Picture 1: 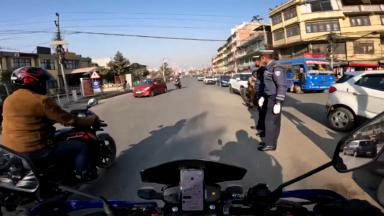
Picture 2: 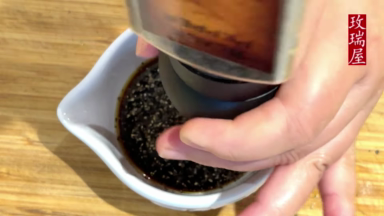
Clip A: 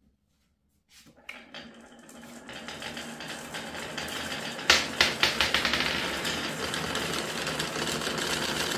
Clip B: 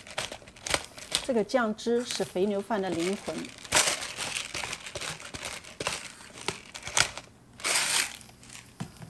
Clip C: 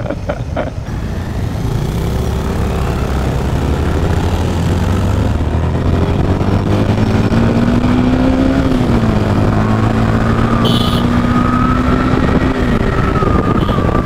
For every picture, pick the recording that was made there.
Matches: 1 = C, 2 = B